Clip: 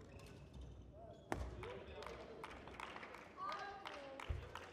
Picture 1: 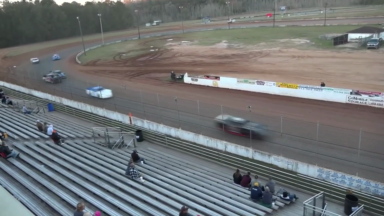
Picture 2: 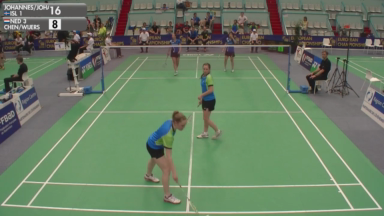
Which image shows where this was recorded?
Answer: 2